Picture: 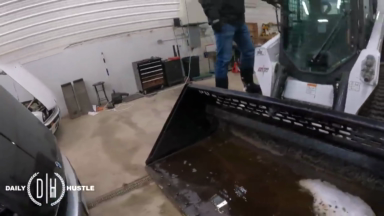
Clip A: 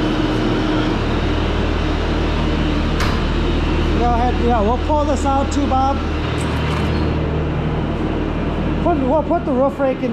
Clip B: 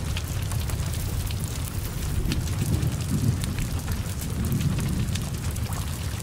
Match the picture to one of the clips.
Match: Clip A